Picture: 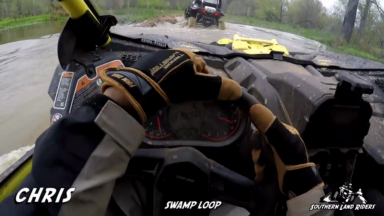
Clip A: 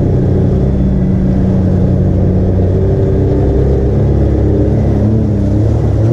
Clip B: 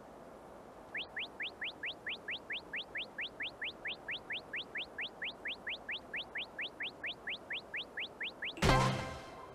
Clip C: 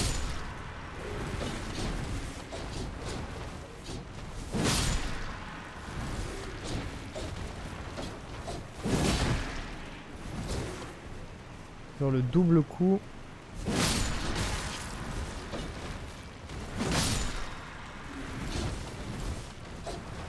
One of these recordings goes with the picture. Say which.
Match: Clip A